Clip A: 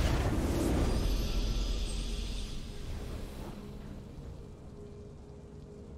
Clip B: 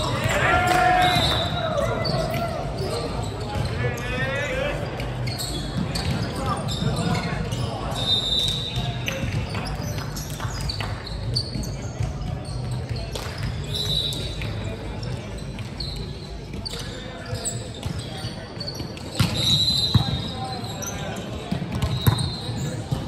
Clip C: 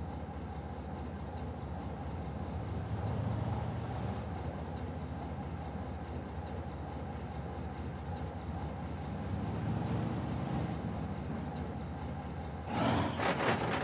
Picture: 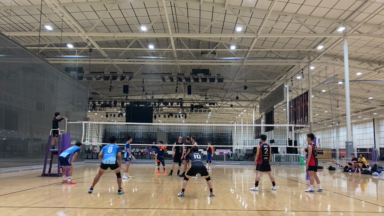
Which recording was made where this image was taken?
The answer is B